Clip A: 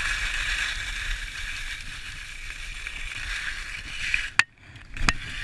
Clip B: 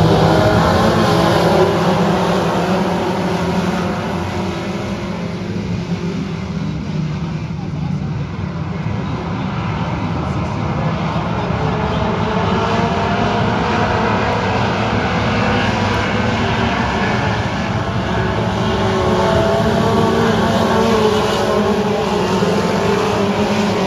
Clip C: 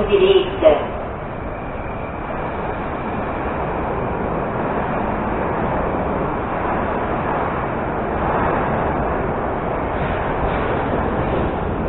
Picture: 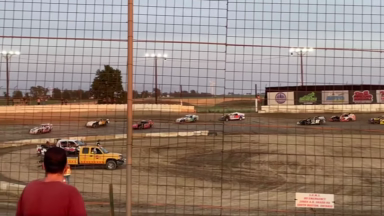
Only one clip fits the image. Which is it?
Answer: B